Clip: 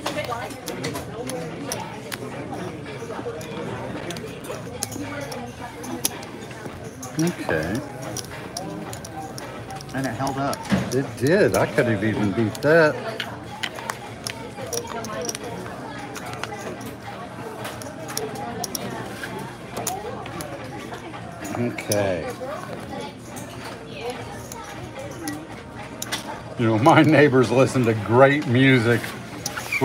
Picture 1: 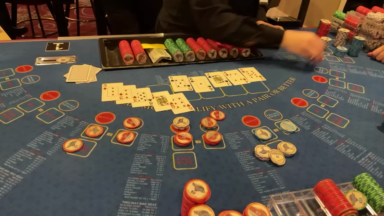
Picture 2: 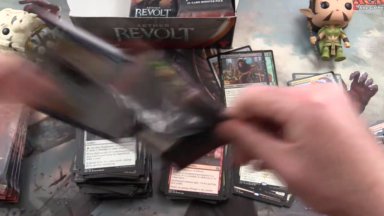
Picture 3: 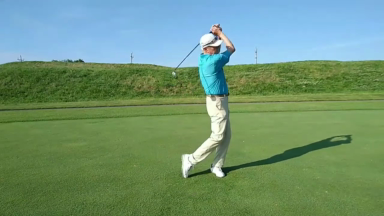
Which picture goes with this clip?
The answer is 1